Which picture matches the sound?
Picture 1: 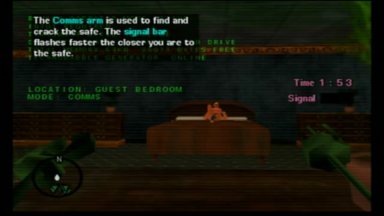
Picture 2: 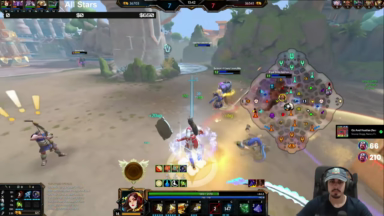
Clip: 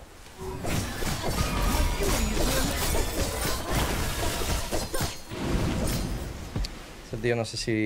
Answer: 2